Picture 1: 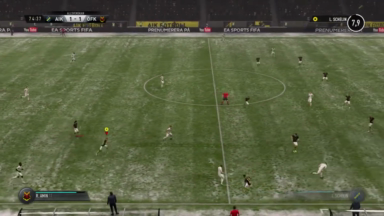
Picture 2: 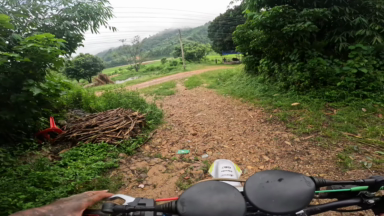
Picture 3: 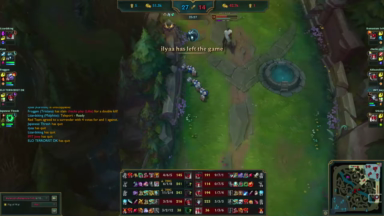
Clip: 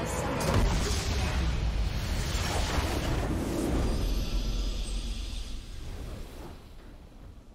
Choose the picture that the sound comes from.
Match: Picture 3